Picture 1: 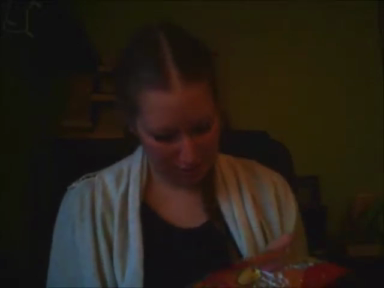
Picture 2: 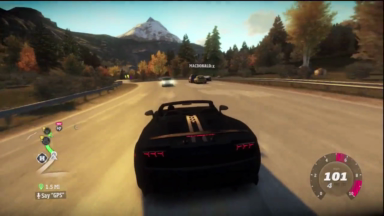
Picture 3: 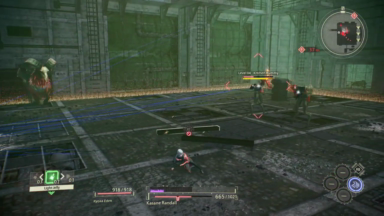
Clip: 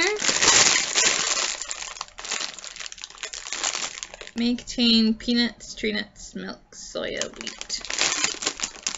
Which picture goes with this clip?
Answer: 1